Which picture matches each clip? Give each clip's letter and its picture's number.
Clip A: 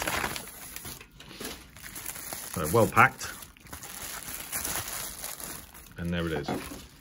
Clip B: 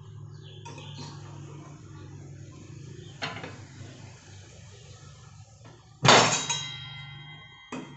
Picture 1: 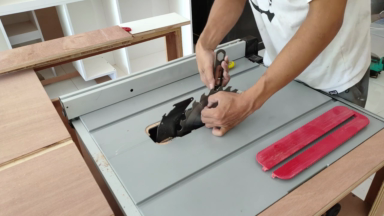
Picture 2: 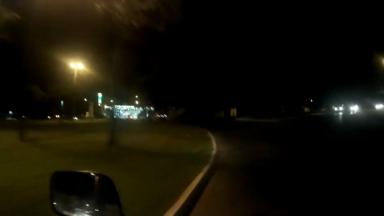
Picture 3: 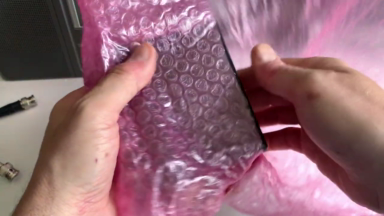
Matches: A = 3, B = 1